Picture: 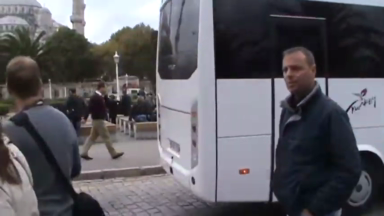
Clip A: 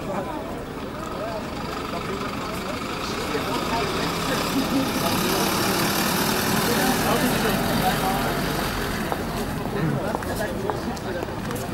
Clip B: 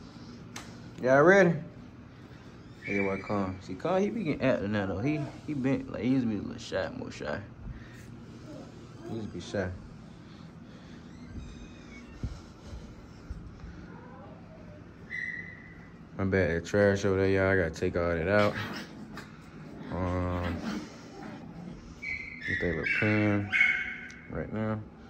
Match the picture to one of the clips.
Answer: A